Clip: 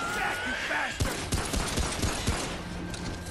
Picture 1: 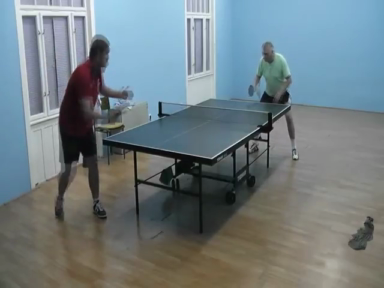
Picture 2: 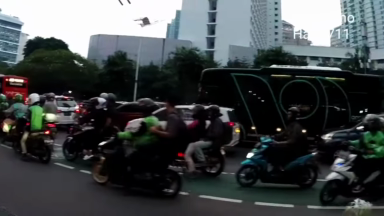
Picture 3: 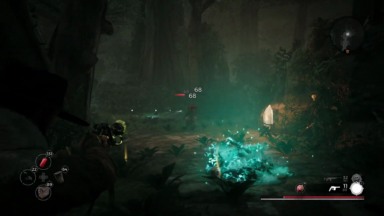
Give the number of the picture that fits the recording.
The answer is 3